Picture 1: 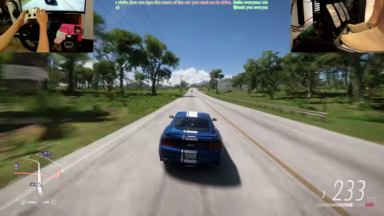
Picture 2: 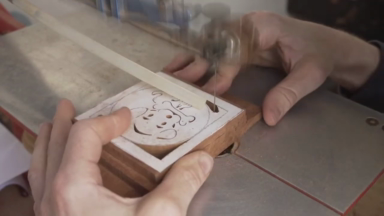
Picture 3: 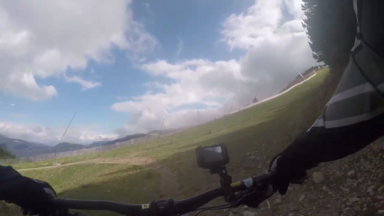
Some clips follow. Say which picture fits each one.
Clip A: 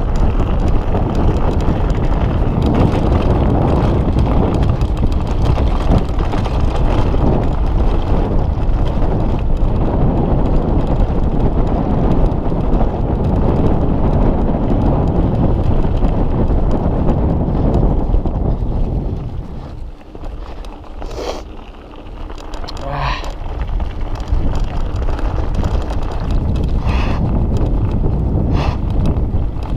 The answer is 3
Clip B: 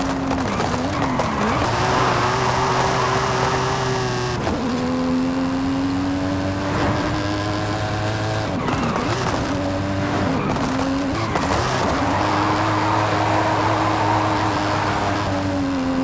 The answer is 1